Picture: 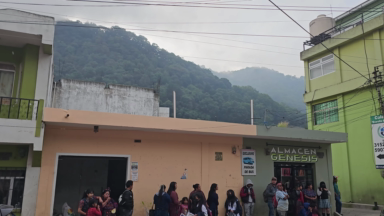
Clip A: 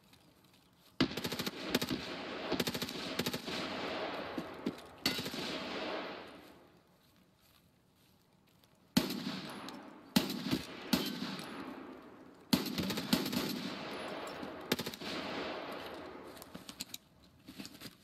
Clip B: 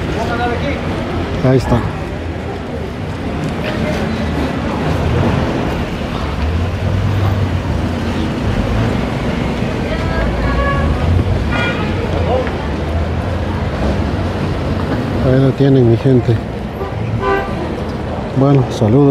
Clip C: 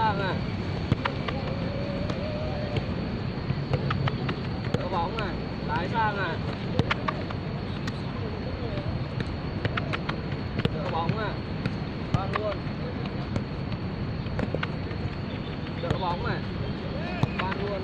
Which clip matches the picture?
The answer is B